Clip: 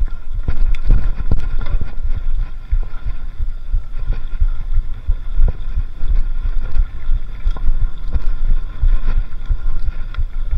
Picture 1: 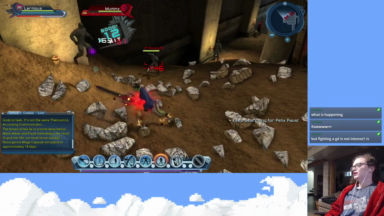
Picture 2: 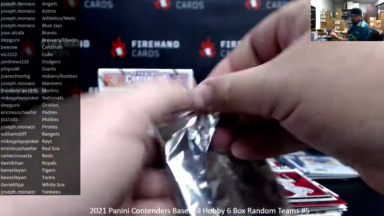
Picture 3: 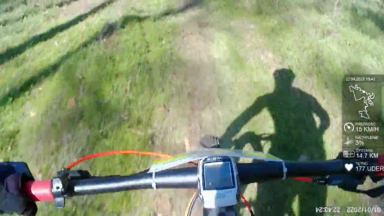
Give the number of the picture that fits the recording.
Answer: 3